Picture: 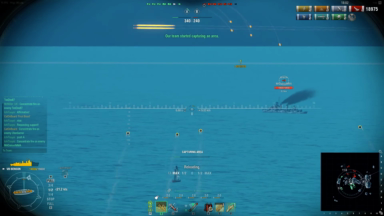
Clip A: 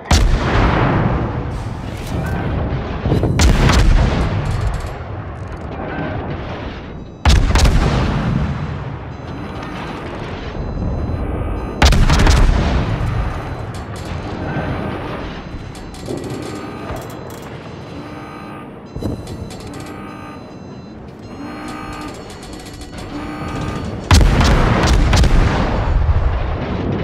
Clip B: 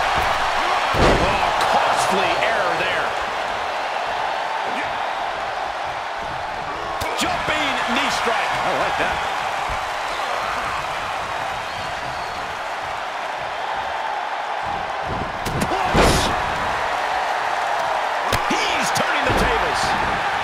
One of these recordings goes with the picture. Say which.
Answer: A